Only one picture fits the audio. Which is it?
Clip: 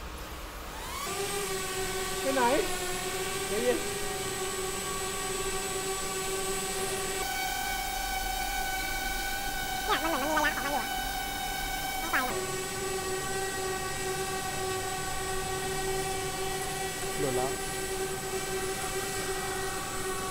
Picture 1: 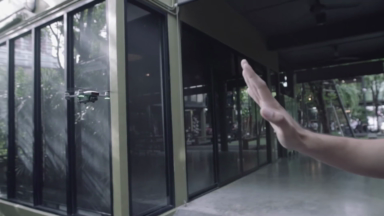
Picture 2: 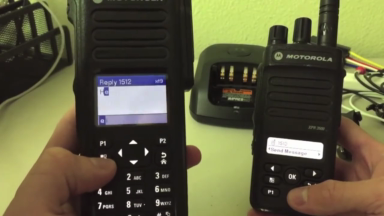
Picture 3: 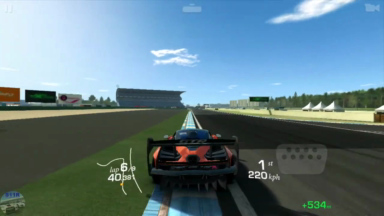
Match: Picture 1